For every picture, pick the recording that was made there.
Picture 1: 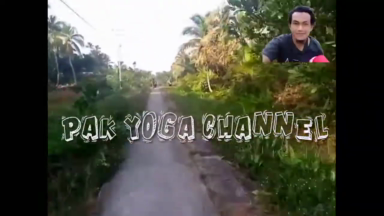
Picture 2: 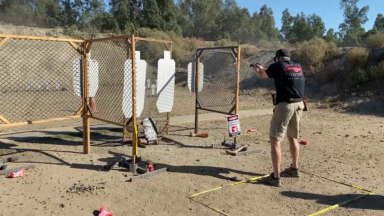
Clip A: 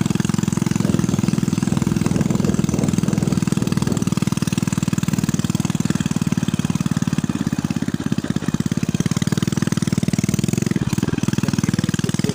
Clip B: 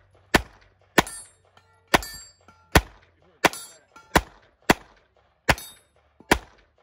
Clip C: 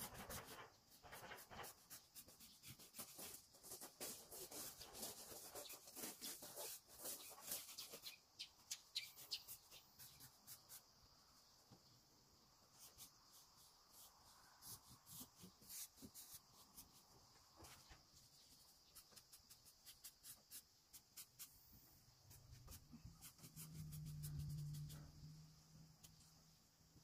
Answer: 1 A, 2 B